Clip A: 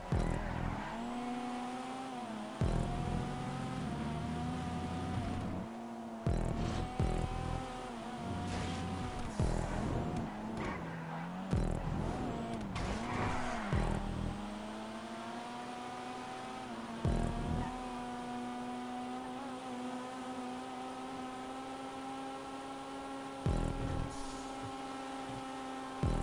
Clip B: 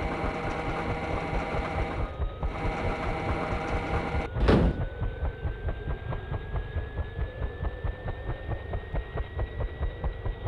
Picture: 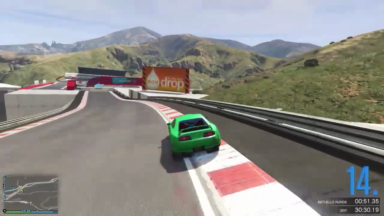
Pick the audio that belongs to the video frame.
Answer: A